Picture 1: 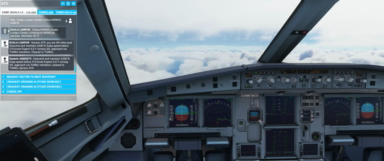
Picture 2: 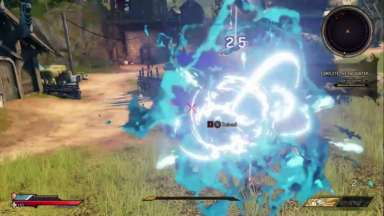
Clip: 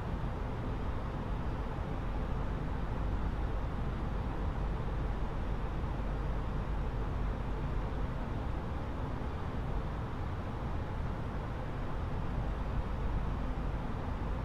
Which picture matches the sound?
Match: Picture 1